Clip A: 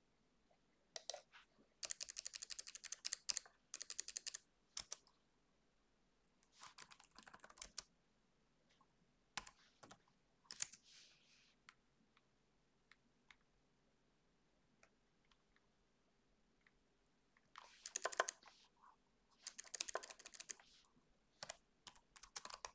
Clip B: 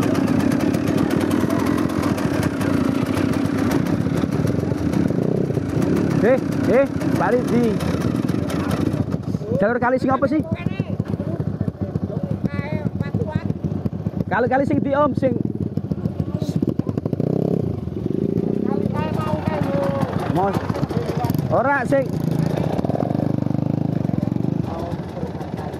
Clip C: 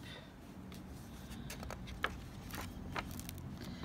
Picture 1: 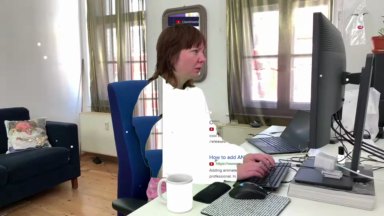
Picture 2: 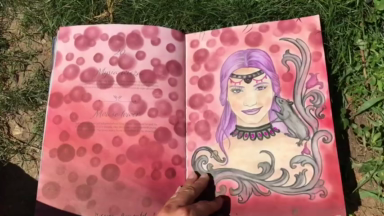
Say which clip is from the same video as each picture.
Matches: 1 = A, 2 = C